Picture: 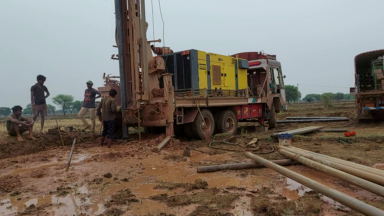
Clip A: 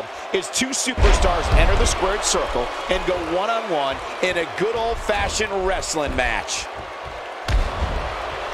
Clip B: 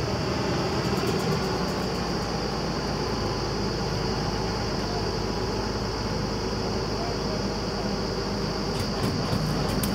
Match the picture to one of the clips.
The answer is B